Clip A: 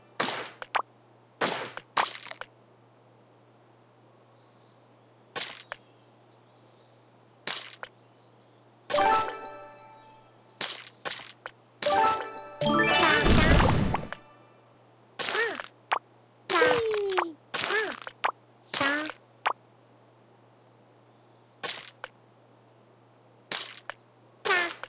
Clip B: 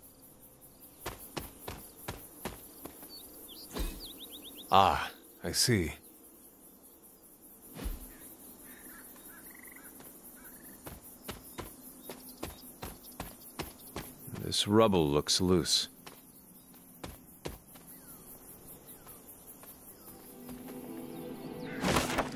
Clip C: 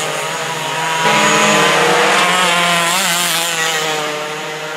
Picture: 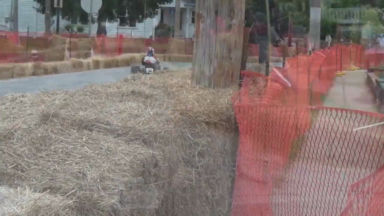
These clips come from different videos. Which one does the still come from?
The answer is C